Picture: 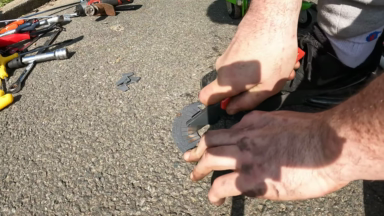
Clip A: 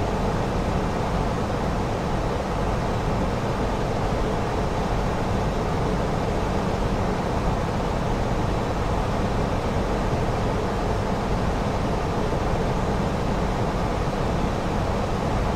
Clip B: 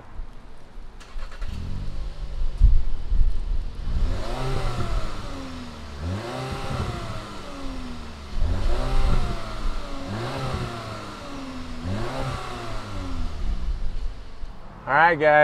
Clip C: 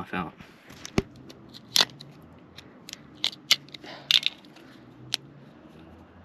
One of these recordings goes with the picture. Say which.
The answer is C